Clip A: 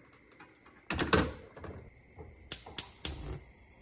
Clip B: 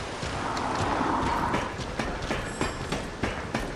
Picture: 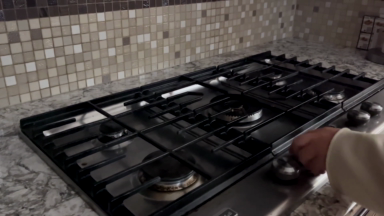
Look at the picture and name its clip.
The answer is A